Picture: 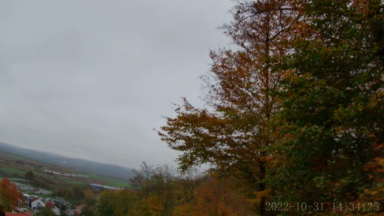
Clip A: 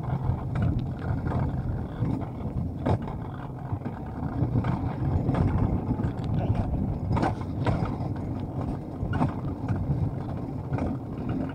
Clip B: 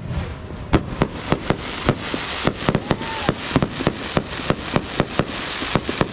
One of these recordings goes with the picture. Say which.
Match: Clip A